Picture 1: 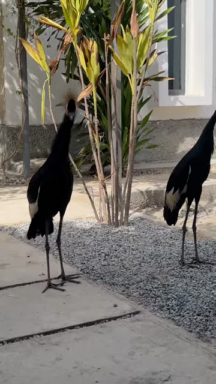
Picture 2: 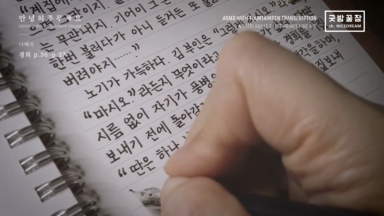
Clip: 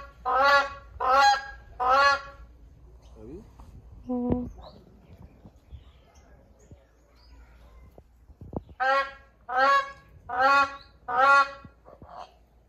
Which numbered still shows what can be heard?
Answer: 1